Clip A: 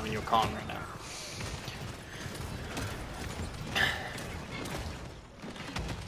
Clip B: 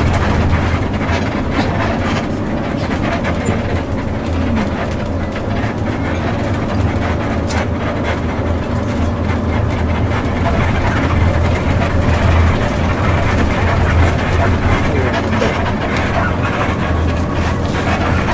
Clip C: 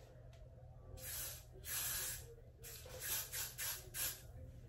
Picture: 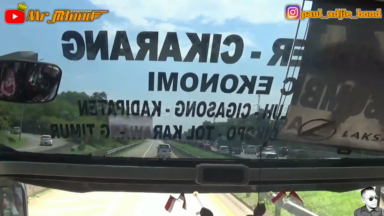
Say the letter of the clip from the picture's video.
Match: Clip B